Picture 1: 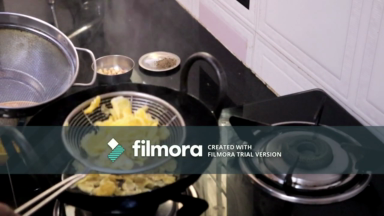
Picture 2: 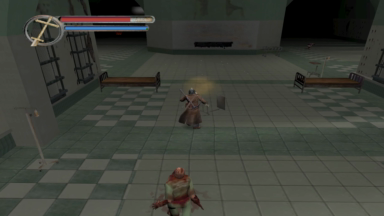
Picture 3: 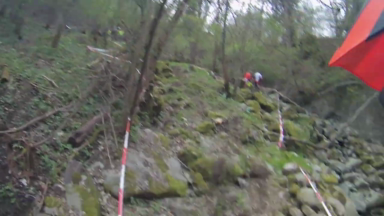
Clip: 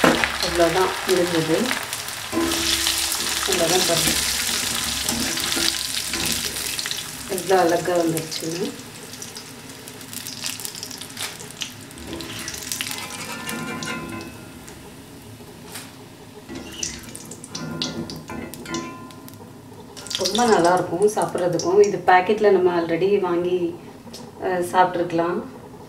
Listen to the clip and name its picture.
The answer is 1